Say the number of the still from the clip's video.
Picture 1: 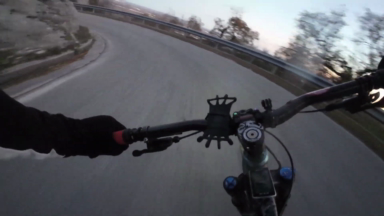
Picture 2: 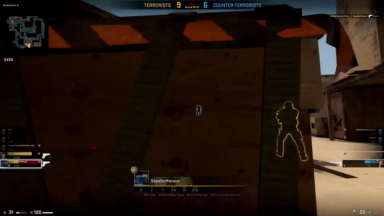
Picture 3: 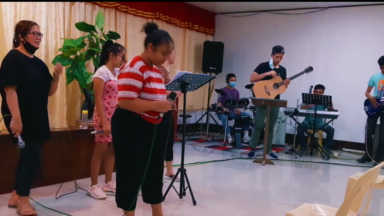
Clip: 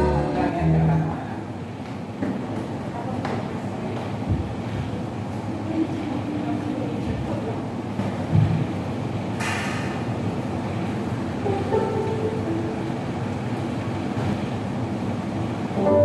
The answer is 3